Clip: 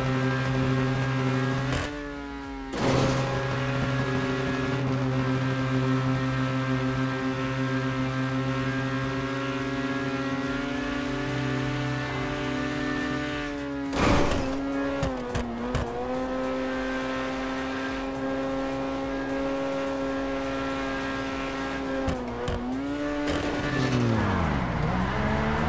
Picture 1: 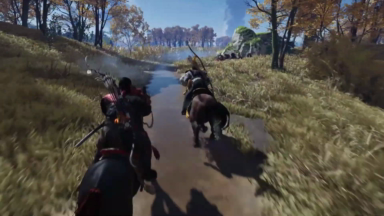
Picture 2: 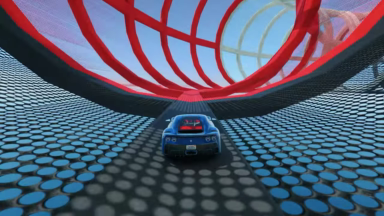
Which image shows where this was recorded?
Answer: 2